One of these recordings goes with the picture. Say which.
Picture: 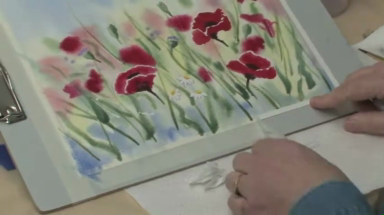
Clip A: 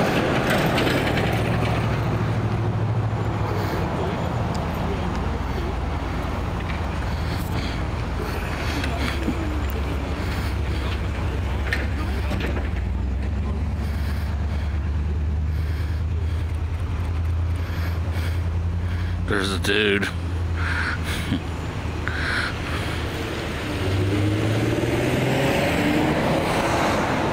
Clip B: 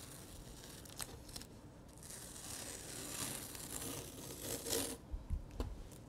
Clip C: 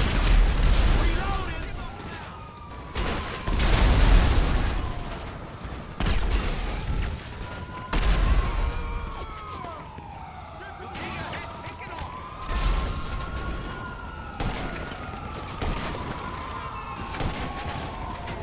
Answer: B